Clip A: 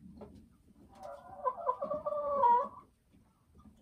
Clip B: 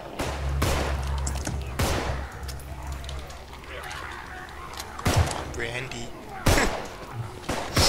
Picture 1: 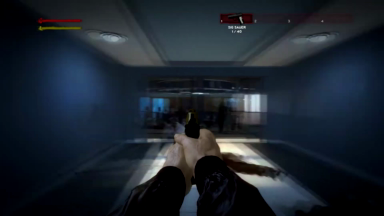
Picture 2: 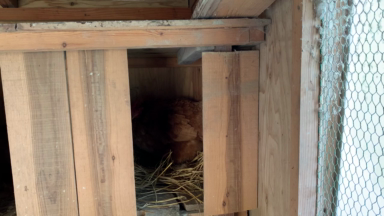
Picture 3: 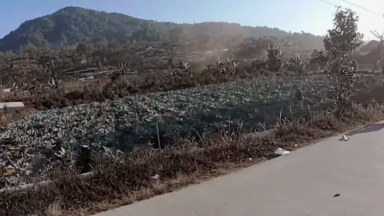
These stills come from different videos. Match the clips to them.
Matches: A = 2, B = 1